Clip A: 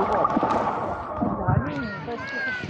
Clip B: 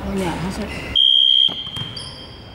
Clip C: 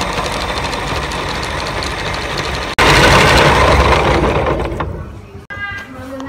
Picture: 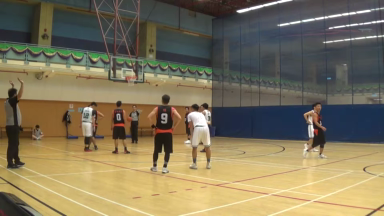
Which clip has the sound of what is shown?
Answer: B